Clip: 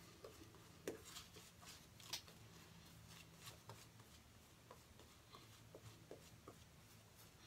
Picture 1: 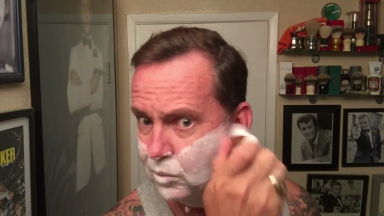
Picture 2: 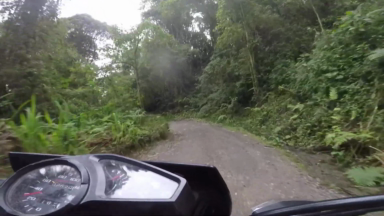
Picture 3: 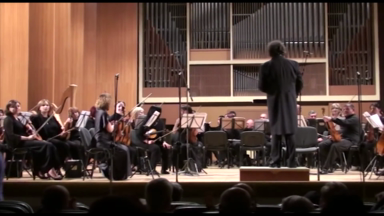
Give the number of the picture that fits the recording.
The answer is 1